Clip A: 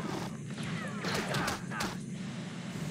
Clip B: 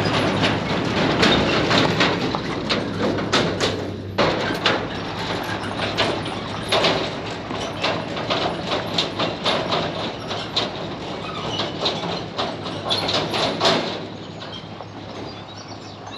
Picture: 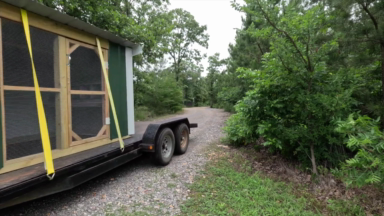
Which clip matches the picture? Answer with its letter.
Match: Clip B